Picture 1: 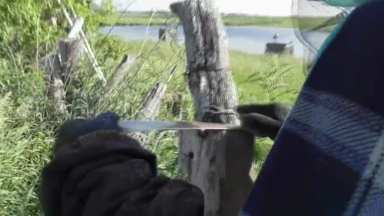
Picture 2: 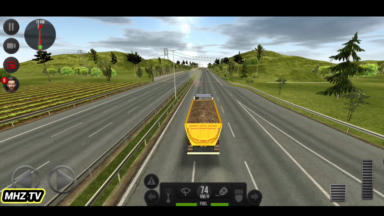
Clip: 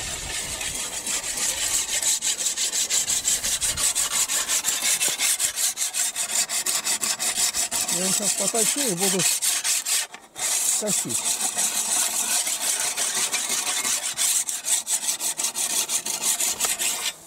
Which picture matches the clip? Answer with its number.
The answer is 1